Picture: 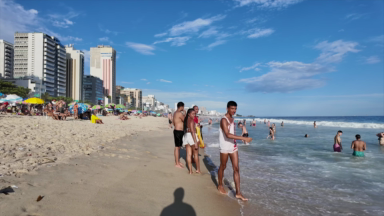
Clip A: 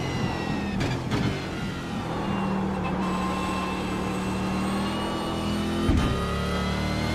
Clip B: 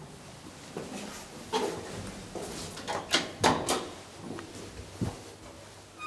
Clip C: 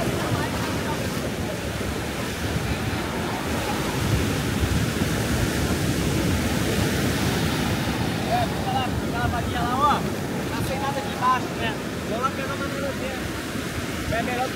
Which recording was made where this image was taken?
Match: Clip C